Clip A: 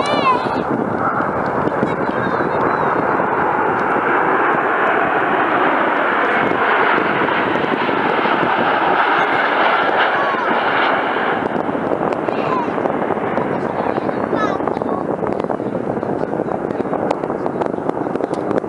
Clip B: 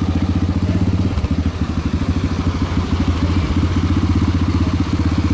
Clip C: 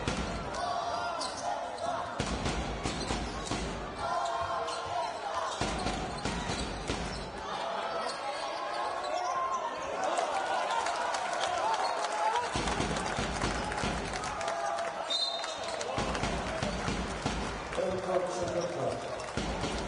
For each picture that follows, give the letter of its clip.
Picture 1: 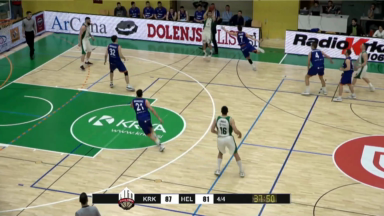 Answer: C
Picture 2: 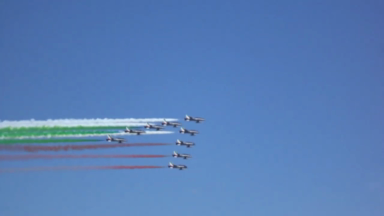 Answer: A